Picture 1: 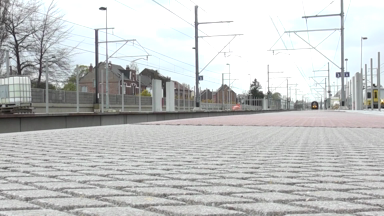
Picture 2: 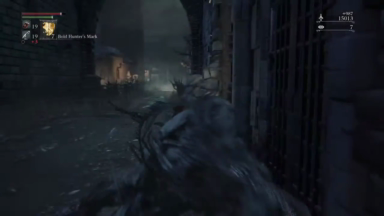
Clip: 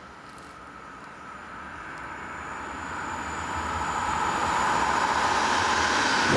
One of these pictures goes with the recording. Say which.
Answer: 1